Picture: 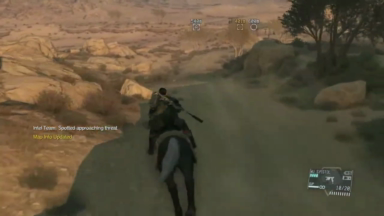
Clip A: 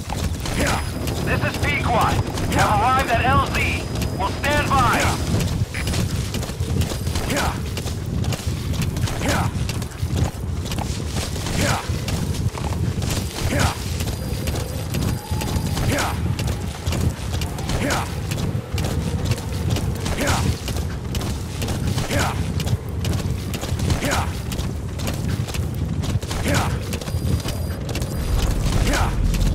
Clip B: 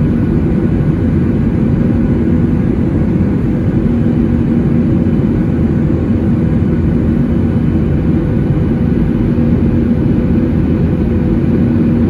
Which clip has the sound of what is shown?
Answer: A